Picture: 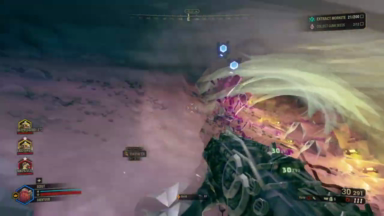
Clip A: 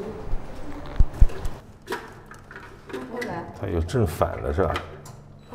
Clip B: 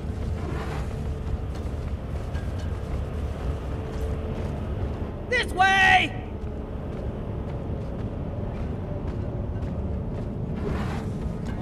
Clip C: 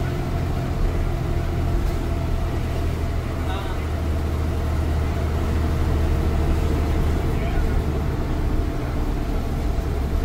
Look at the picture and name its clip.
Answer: B